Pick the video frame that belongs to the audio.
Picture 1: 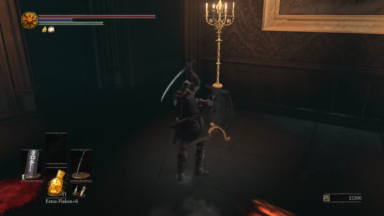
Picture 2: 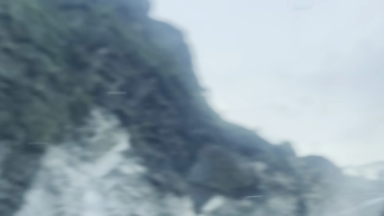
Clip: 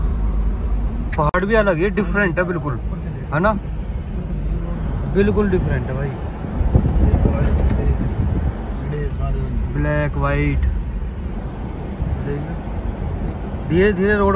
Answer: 2